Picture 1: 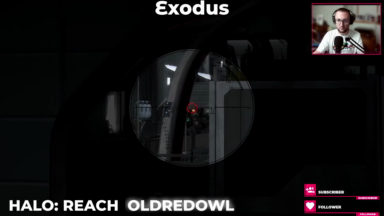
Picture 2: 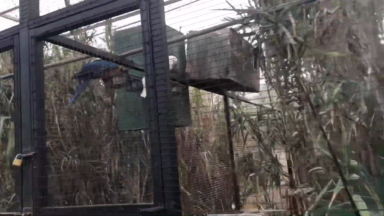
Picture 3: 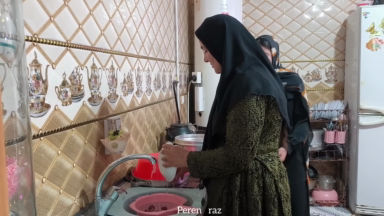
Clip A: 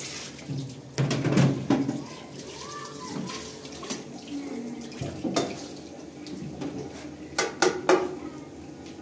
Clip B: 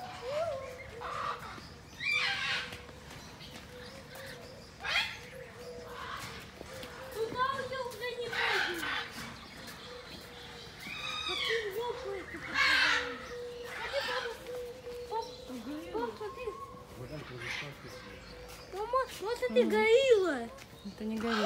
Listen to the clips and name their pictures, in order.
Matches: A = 3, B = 2